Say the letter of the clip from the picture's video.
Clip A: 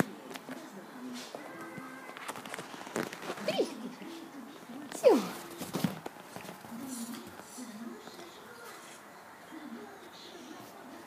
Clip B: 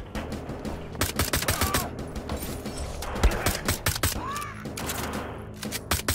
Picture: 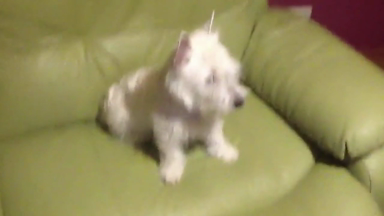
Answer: A